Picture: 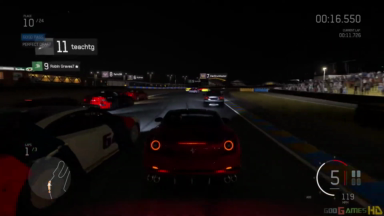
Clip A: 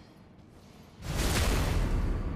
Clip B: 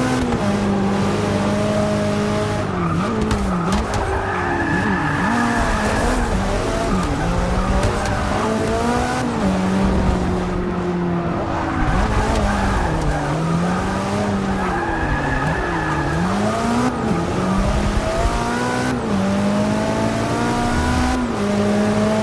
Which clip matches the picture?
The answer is B